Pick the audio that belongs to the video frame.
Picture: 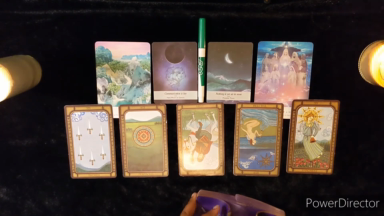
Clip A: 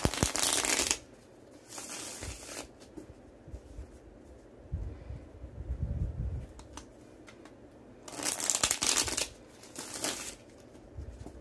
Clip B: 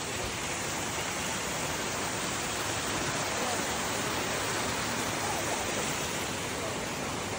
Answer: A